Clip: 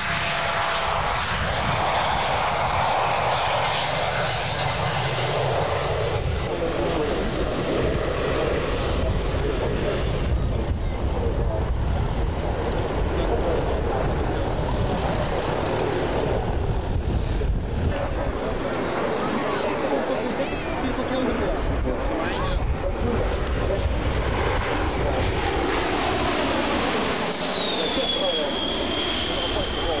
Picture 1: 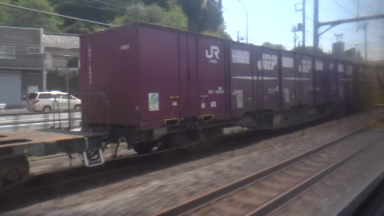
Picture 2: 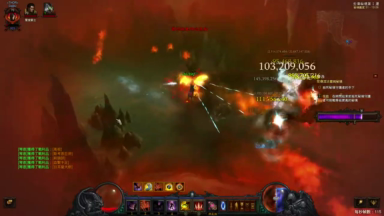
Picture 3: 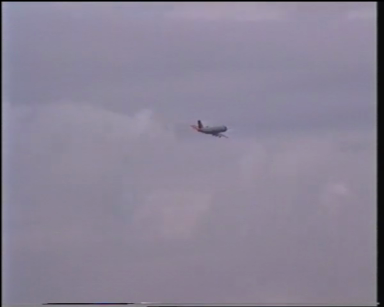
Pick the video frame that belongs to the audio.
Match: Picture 3